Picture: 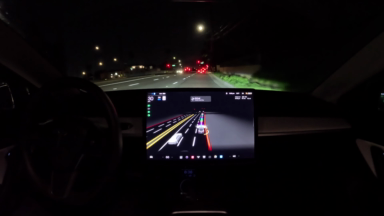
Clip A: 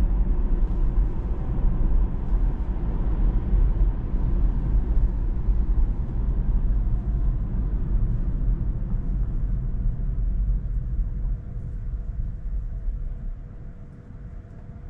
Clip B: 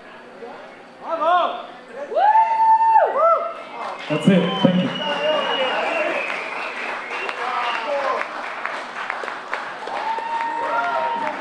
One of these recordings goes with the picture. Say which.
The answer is A